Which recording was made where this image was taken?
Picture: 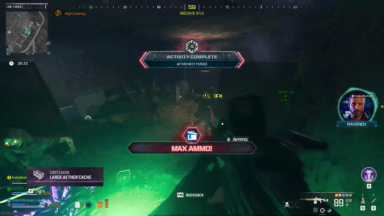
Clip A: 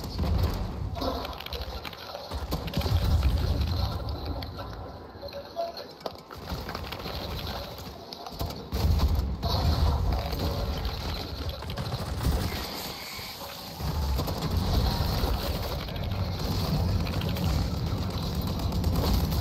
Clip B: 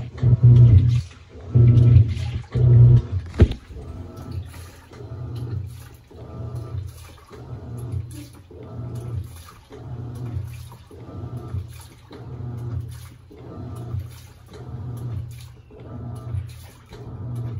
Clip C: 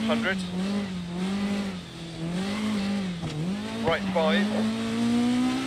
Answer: A